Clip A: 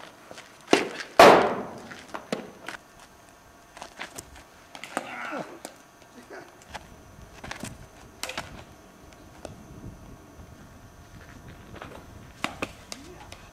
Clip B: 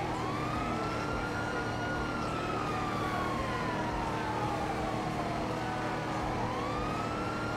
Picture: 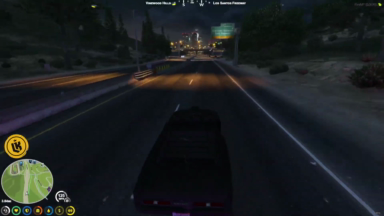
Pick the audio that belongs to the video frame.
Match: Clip B